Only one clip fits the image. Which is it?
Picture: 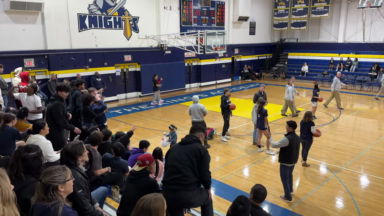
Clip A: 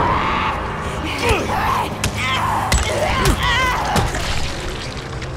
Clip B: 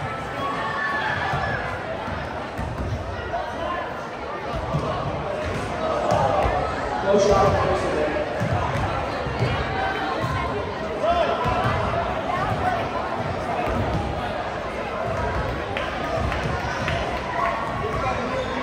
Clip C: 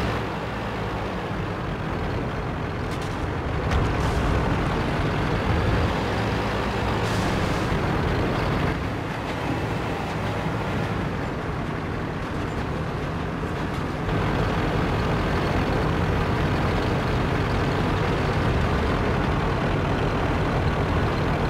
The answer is B